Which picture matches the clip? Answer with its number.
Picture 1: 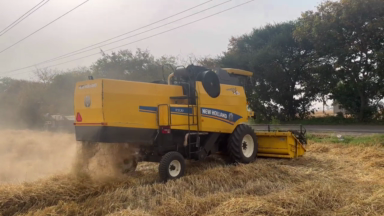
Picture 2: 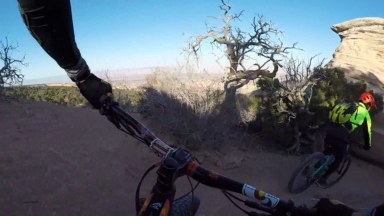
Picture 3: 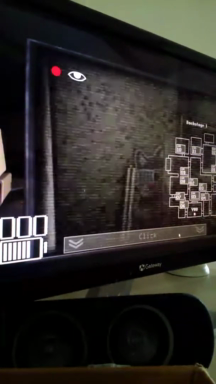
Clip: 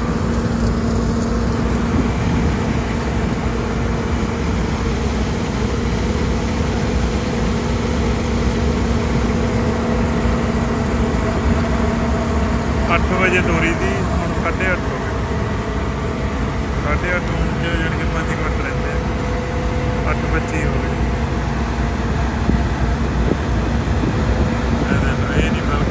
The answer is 1